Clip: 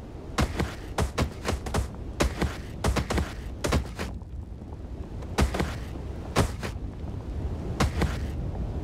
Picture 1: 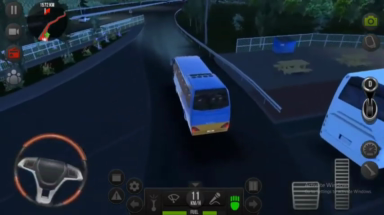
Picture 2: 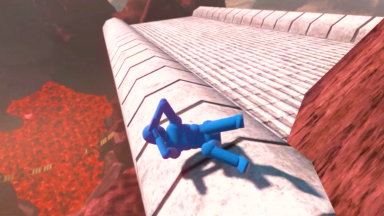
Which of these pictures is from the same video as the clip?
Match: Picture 2